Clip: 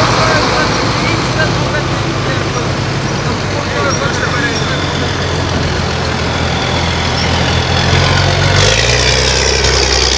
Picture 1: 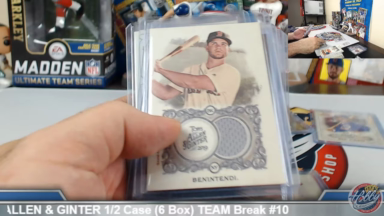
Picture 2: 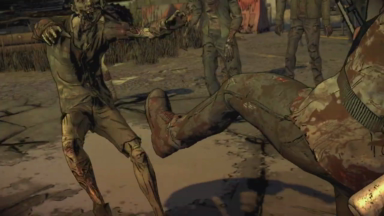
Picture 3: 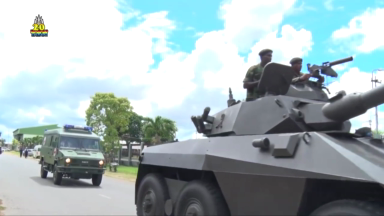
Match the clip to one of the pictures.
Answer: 3